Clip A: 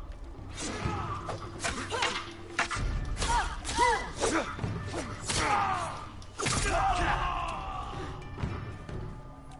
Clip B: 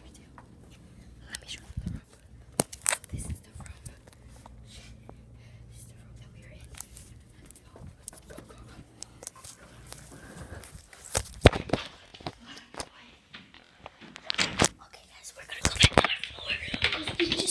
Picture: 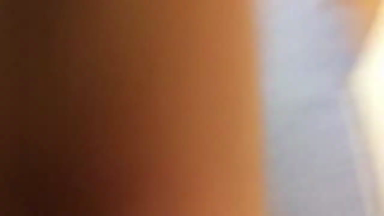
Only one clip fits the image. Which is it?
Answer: B